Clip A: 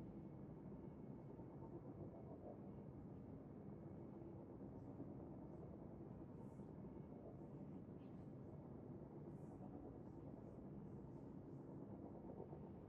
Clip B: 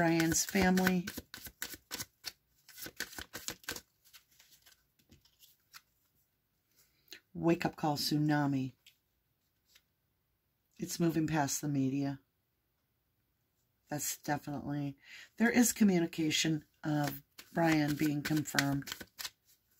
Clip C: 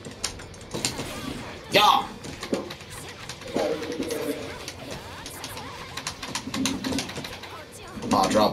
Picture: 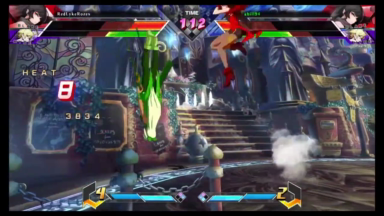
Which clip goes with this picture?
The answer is C